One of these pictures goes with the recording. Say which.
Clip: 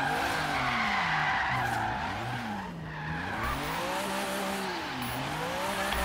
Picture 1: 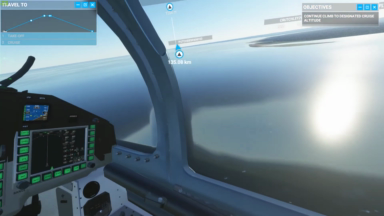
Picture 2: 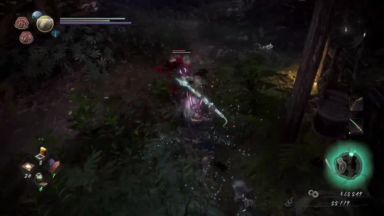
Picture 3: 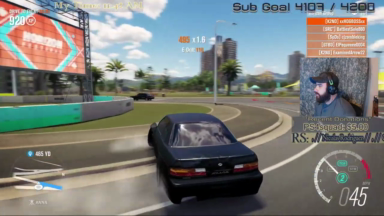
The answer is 3